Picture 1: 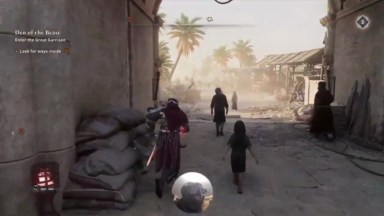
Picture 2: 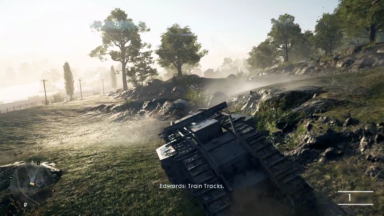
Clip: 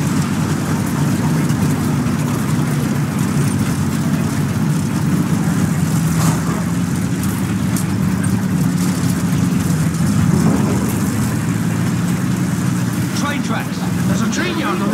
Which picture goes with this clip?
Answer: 2